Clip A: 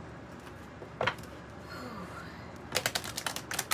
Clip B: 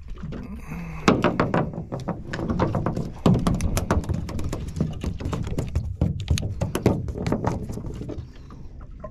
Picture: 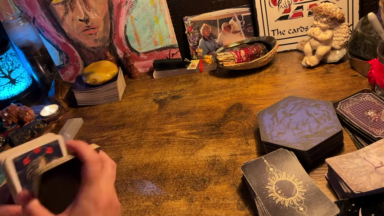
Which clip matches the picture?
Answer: A